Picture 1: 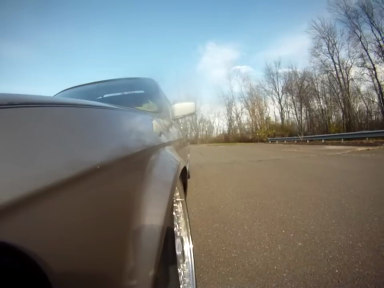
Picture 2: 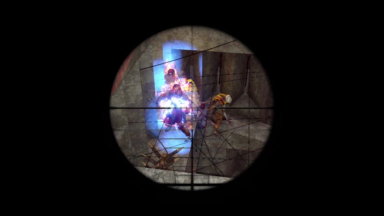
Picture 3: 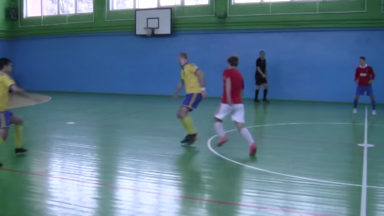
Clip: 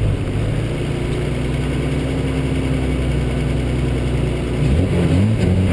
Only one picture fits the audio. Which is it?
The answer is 1